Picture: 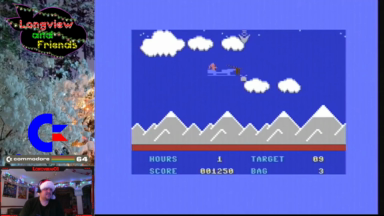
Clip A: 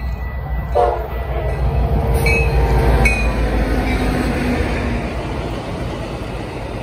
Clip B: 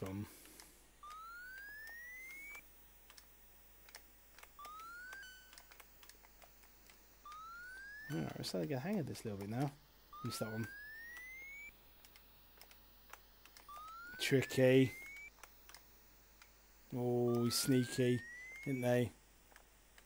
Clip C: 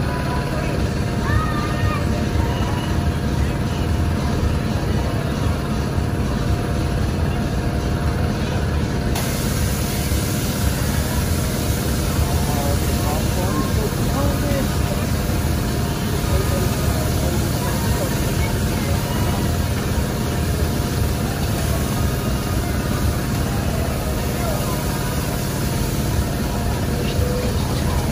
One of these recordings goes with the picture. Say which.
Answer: B